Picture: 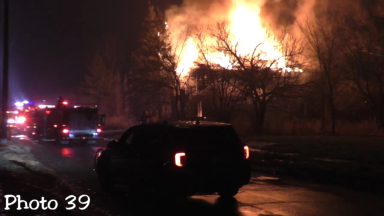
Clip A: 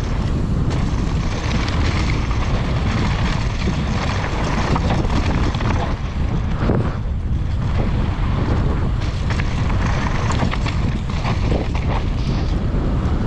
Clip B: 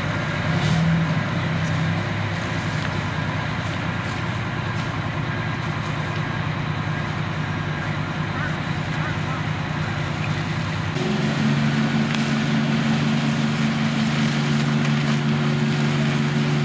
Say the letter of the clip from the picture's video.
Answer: B